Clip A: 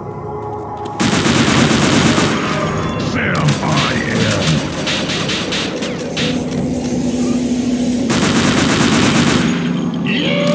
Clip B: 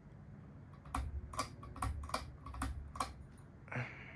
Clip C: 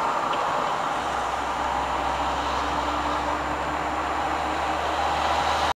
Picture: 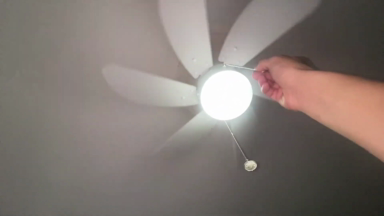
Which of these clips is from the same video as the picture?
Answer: B